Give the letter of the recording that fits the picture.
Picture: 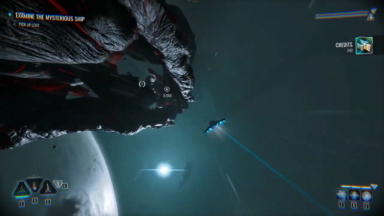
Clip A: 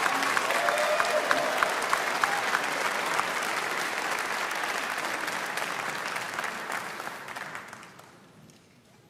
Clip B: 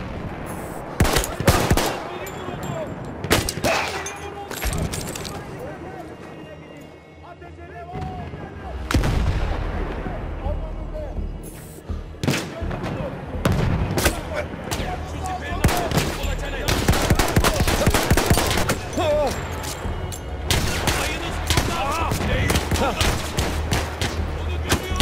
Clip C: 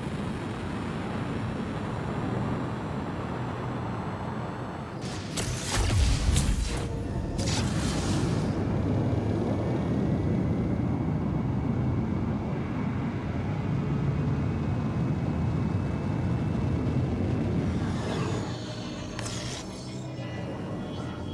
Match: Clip C